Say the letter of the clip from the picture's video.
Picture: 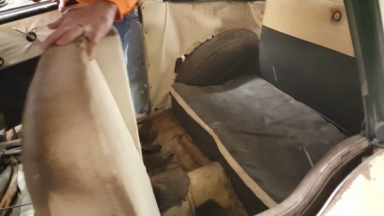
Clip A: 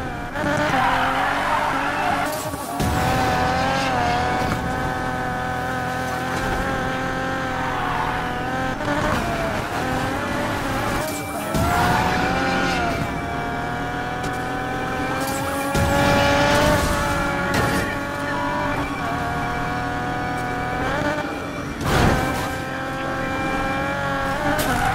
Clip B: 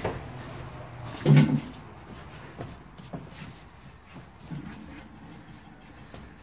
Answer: B